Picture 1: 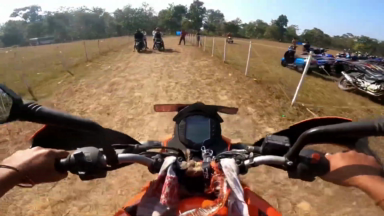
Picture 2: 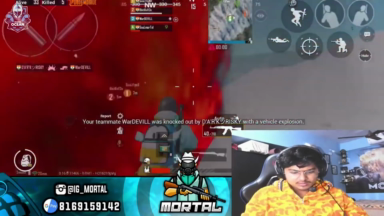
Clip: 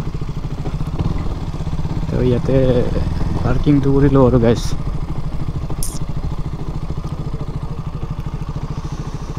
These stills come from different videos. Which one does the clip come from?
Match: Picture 1